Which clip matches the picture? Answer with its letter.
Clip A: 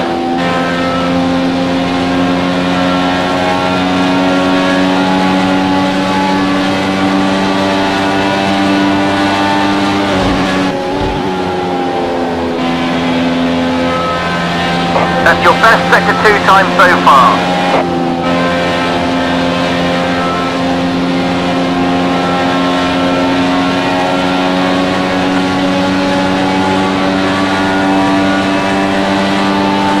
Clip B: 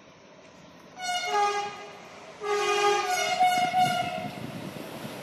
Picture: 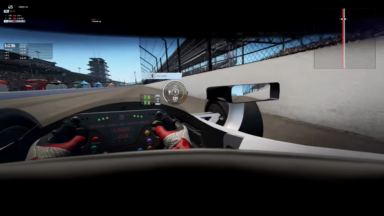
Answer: A